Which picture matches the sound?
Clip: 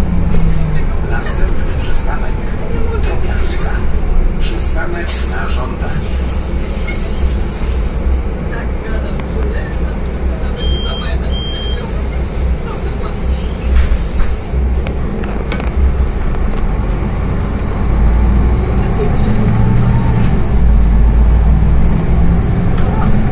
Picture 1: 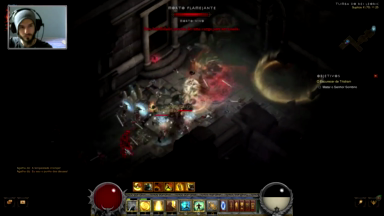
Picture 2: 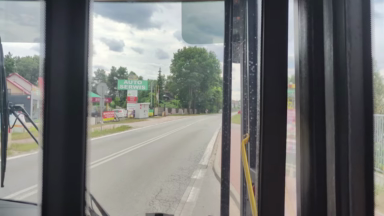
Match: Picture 2